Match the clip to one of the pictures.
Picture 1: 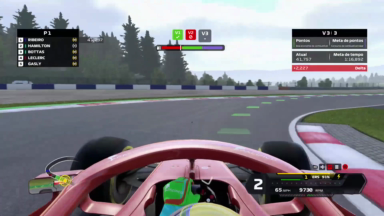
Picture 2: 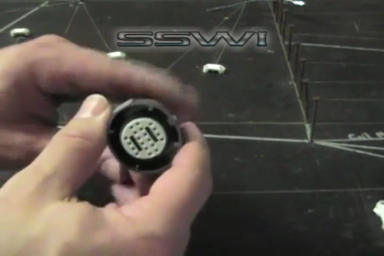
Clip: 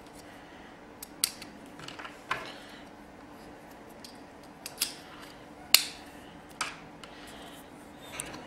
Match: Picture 2